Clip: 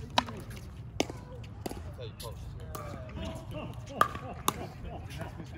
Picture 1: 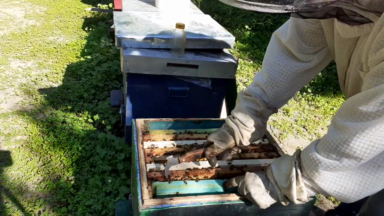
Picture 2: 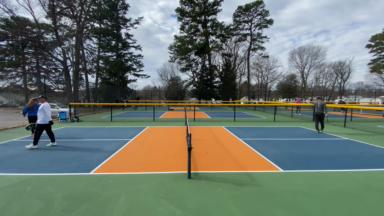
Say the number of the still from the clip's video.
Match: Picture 2